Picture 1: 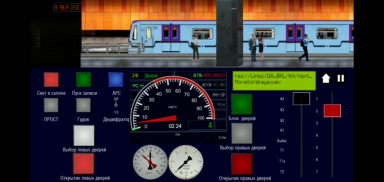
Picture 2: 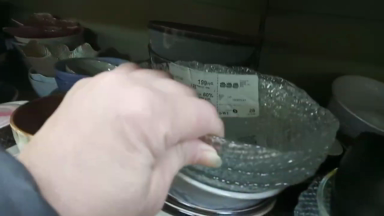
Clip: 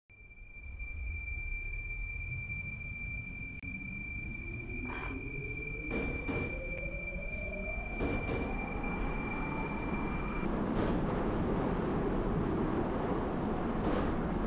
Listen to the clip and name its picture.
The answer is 1